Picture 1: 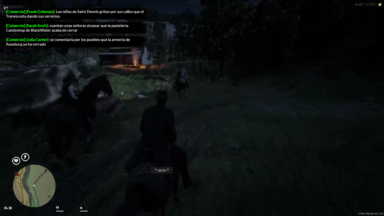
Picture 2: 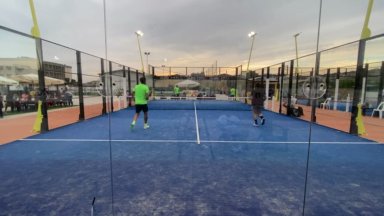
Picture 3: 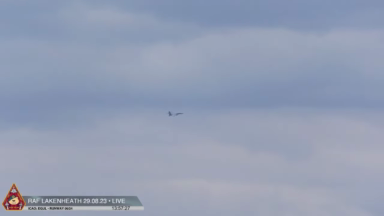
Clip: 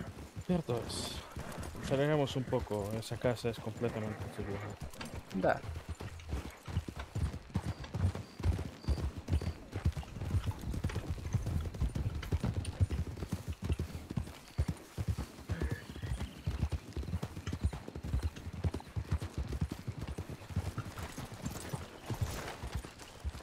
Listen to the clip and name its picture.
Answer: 1